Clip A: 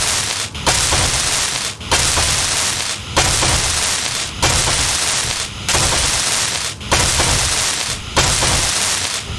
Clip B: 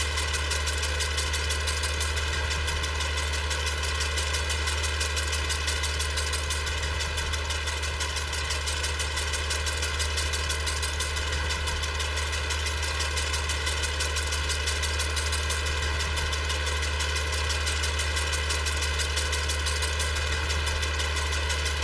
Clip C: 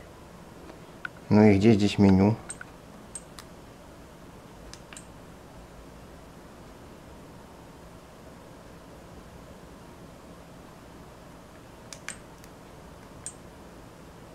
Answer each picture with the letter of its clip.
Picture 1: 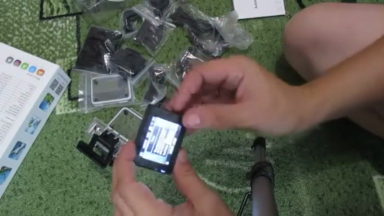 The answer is C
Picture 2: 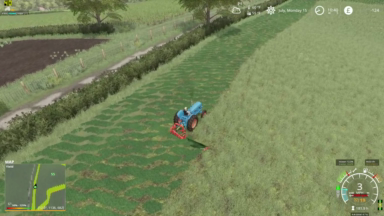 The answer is B